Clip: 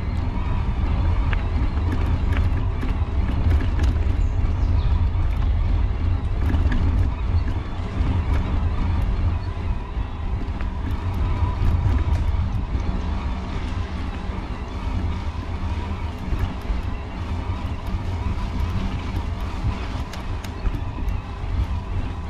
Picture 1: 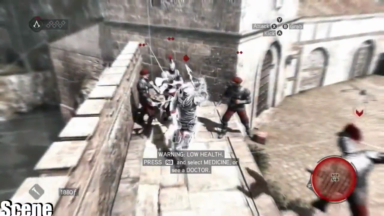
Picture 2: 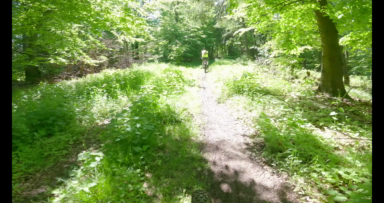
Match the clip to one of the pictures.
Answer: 2